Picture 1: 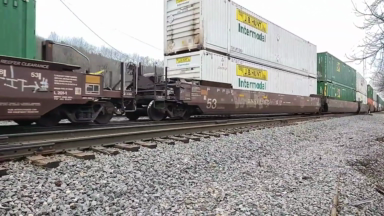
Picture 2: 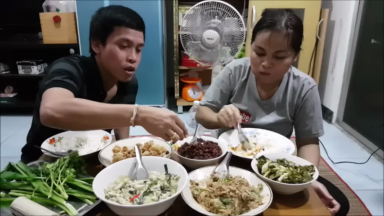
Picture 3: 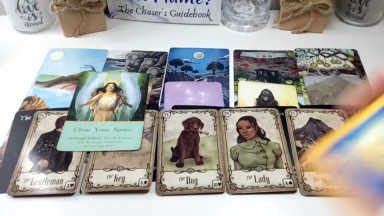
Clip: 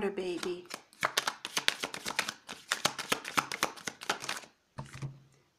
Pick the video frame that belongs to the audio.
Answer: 3